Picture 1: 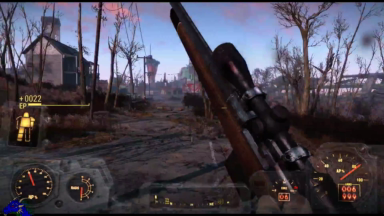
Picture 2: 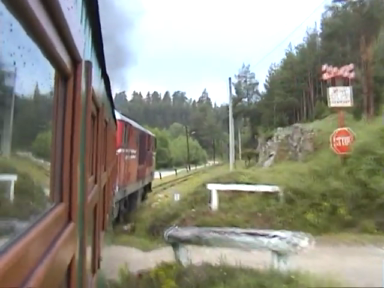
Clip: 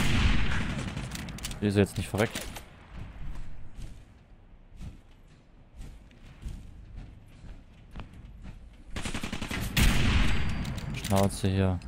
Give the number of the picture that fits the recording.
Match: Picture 1